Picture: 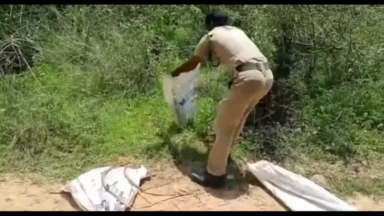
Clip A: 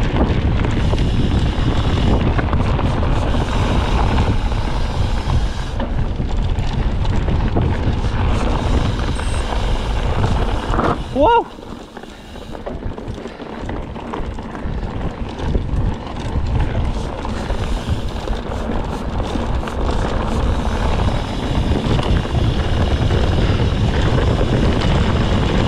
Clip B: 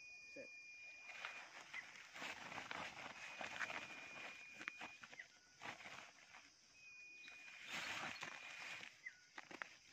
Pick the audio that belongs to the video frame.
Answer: B